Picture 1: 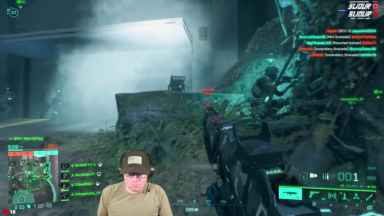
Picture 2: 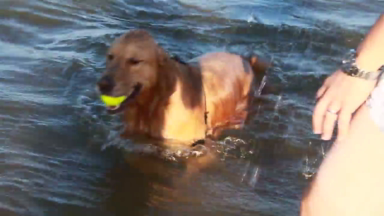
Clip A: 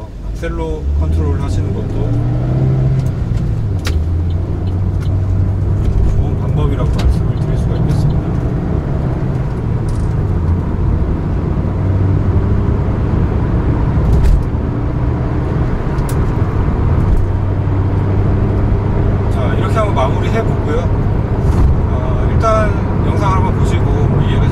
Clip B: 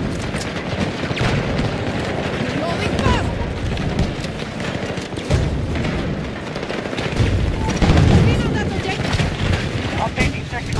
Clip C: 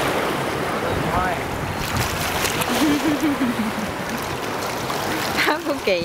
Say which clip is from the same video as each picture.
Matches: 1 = B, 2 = C